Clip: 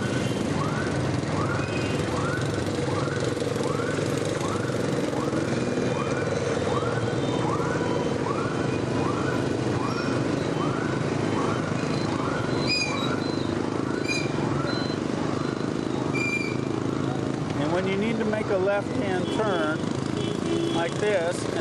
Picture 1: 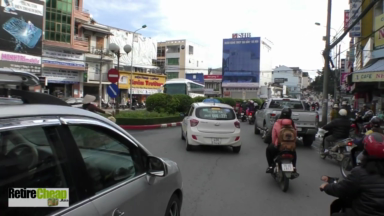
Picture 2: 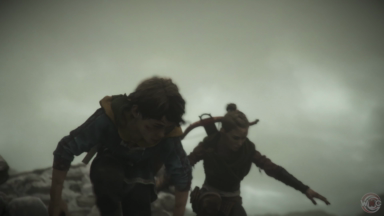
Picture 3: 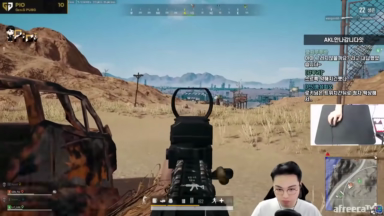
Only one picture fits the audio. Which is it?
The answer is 1